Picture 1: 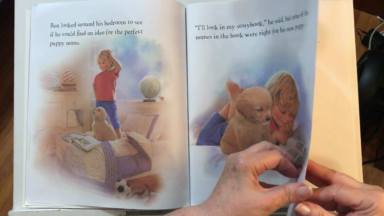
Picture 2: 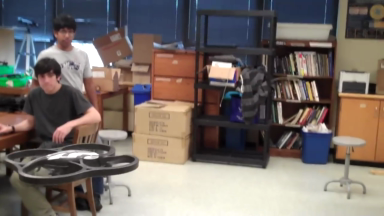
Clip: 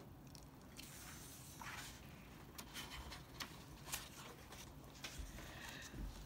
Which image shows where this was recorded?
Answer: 1